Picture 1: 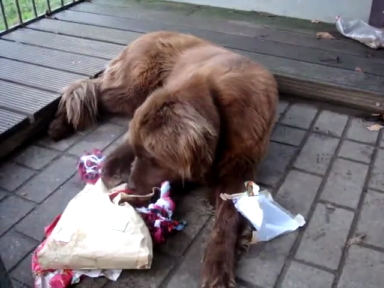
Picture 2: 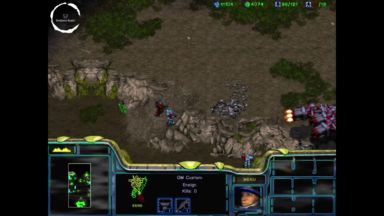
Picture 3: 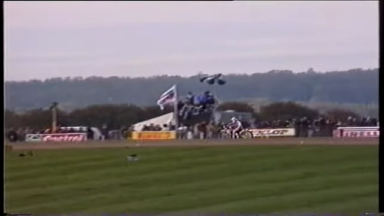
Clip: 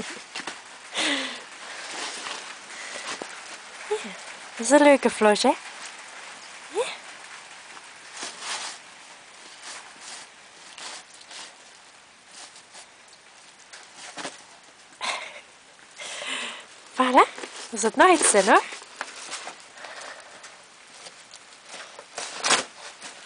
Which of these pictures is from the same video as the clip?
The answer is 1